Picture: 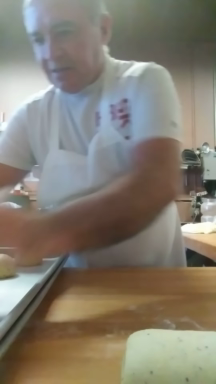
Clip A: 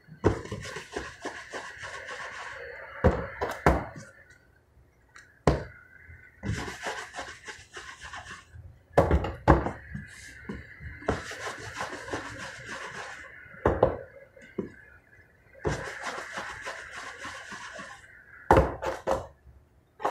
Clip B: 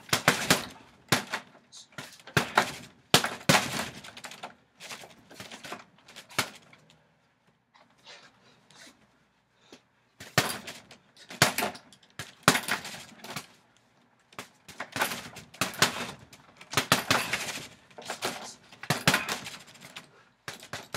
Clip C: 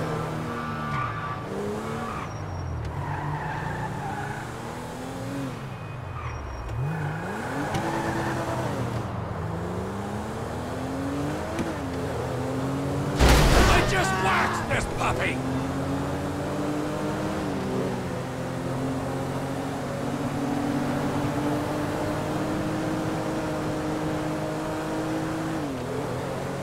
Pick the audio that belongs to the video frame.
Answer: A